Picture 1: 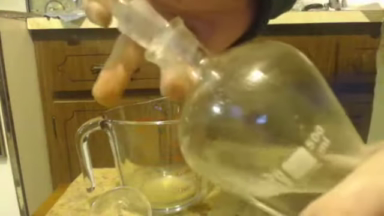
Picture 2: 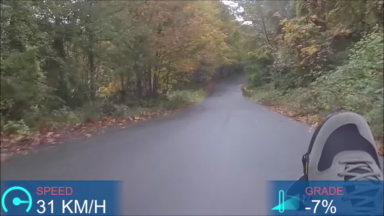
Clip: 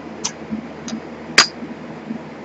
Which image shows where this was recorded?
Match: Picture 1